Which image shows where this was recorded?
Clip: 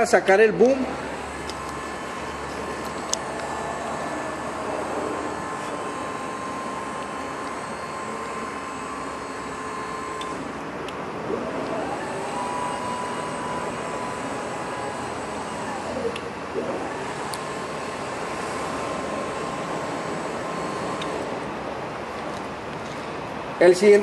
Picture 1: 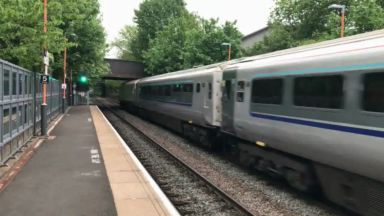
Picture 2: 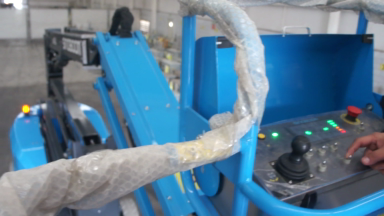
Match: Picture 2